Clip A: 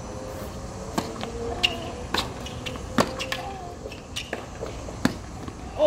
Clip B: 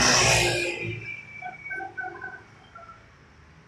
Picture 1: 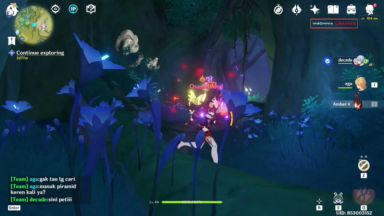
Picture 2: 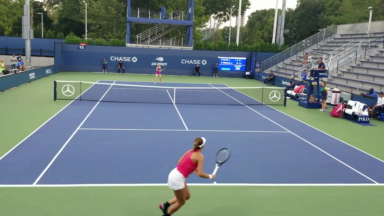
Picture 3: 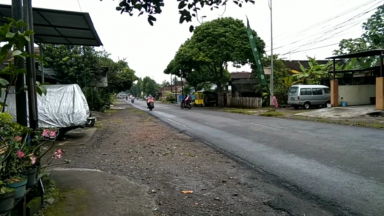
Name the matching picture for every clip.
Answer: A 2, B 3